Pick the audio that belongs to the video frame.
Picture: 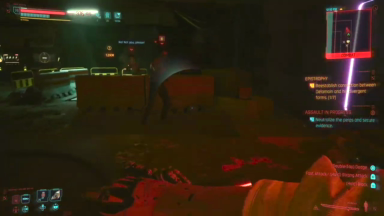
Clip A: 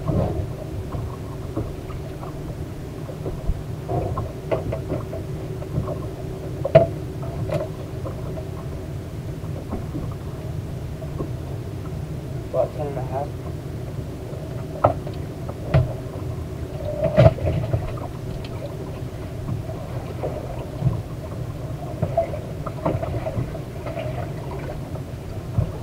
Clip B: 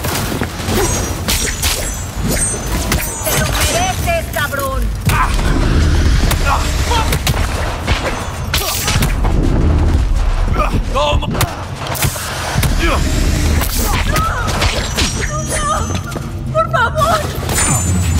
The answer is B